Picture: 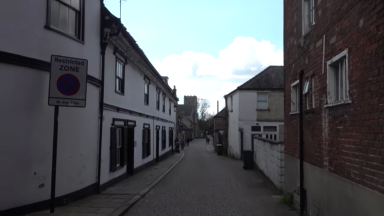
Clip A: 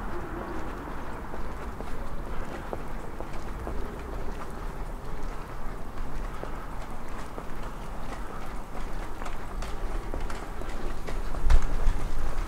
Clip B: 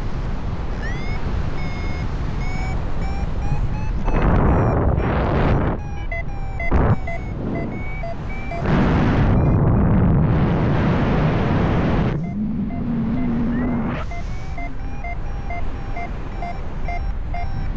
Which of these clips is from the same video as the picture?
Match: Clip A